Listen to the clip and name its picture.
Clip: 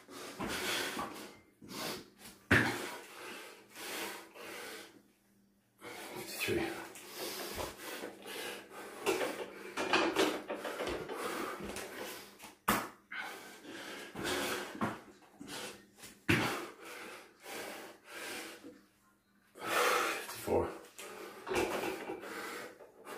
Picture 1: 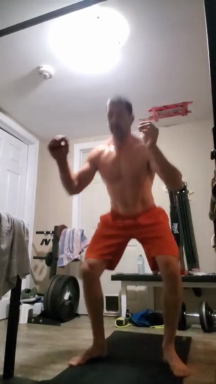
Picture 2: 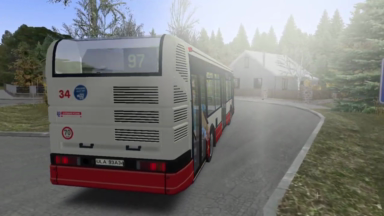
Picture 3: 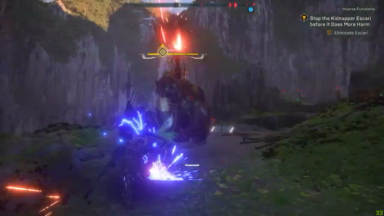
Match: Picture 1